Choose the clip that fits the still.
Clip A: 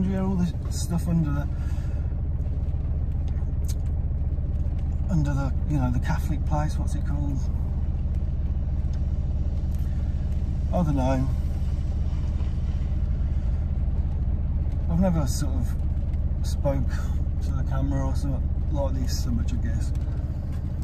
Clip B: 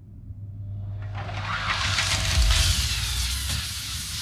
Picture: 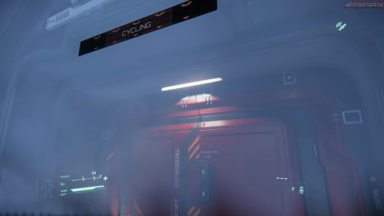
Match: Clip B